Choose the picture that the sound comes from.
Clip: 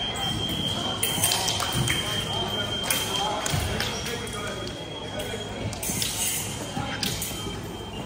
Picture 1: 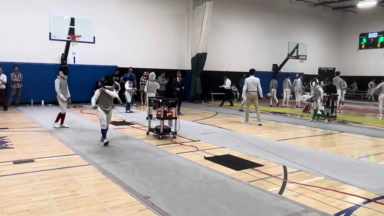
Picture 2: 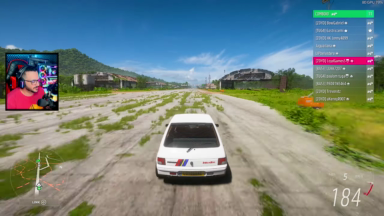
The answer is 1